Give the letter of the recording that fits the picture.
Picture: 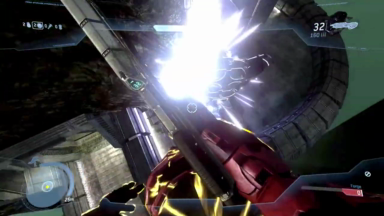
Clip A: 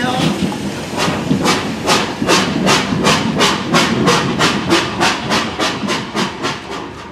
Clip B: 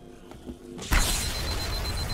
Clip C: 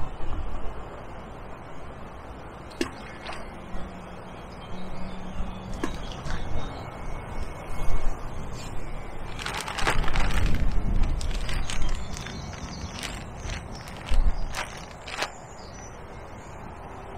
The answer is B